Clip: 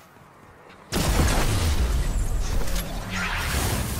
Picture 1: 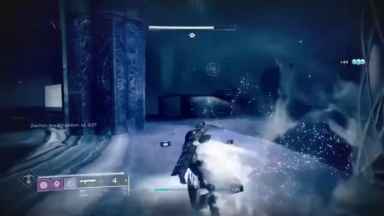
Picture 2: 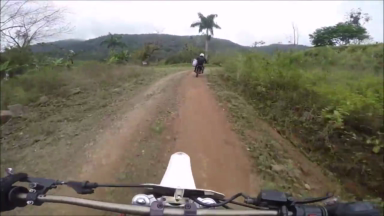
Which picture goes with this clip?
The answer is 1